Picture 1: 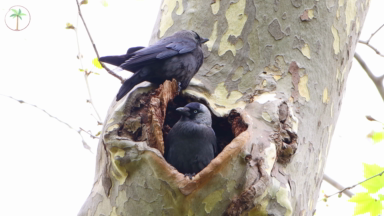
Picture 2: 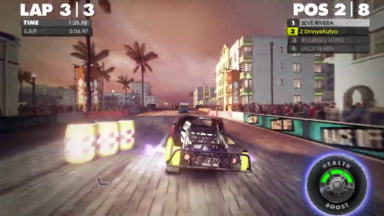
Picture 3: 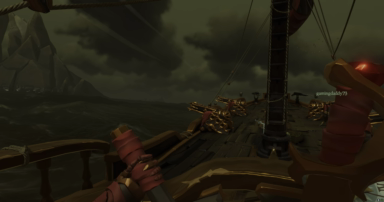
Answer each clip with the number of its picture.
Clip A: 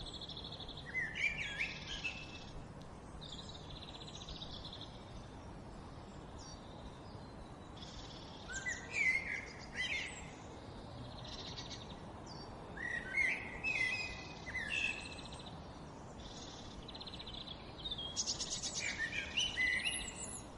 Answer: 1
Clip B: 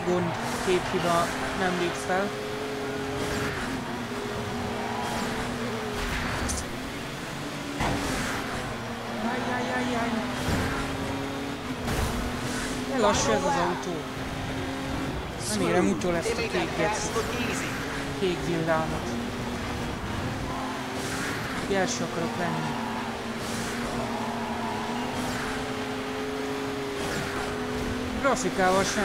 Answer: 2